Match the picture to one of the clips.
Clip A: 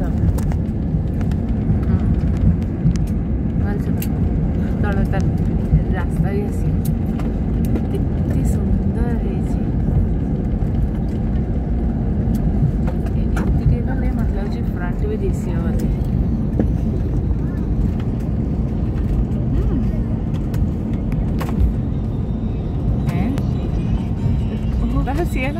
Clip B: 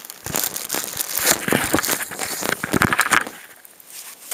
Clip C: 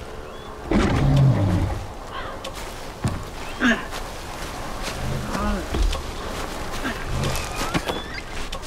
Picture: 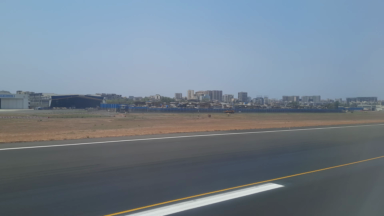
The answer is A